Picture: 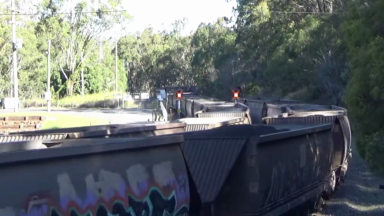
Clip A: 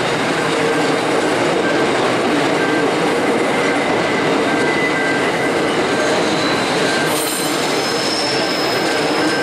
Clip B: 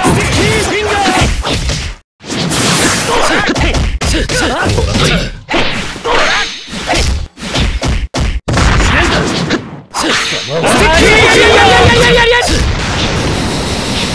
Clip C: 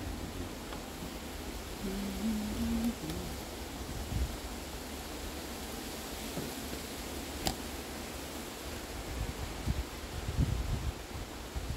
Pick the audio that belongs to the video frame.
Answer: A